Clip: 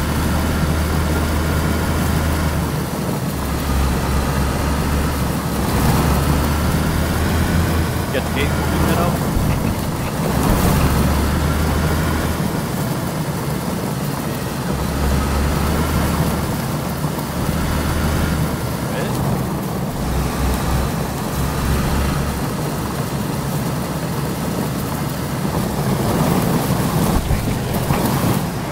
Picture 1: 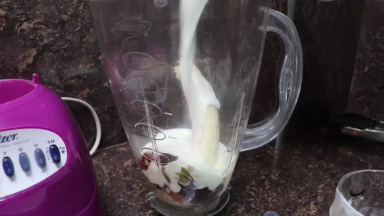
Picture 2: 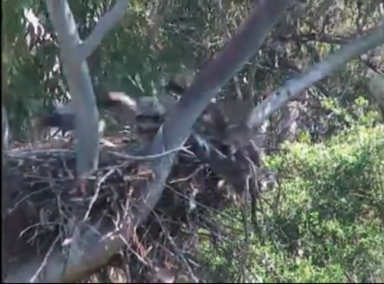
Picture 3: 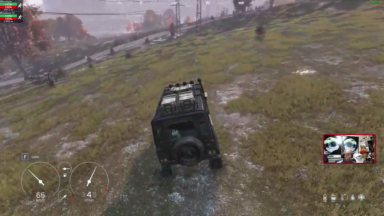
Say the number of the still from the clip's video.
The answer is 3